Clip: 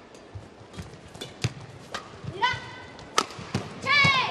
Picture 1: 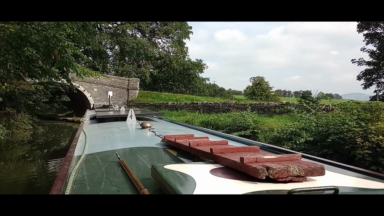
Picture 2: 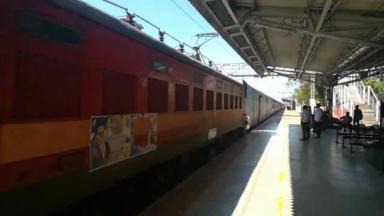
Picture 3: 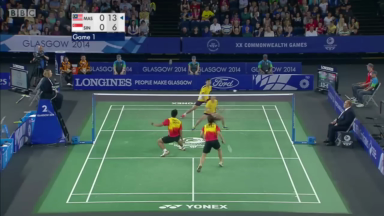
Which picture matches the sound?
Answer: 3